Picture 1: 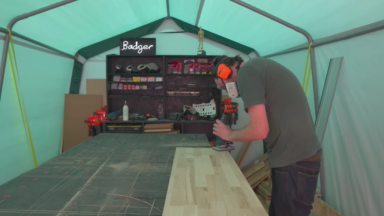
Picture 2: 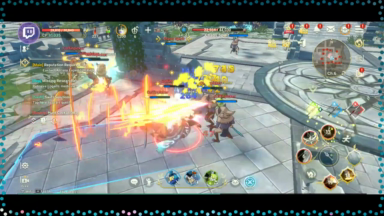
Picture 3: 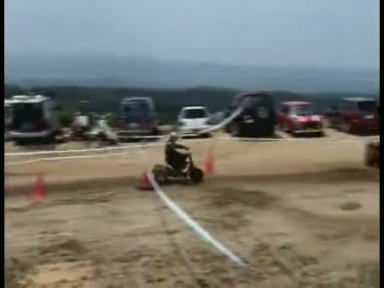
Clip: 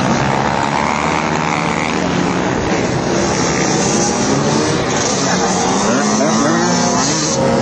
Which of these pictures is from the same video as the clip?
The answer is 3